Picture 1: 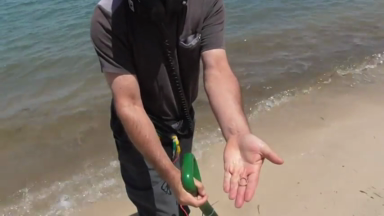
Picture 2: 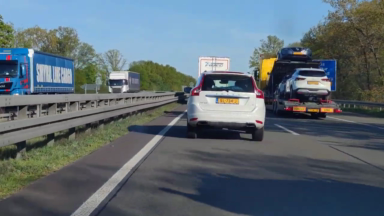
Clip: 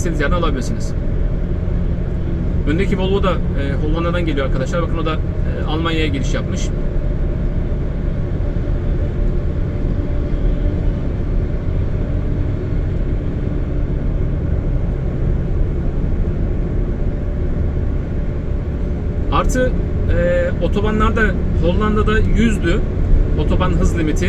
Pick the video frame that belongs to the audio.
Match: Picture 2